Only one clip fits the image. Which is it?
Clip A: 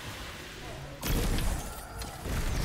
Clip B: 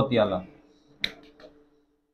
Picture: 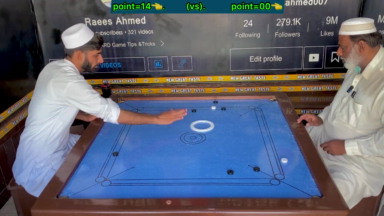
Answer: B